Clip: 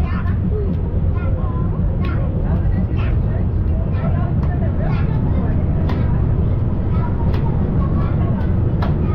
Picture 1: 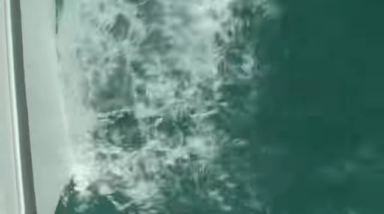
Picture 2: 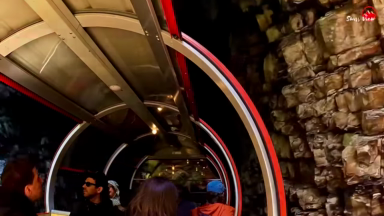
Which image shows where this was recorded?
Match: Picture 2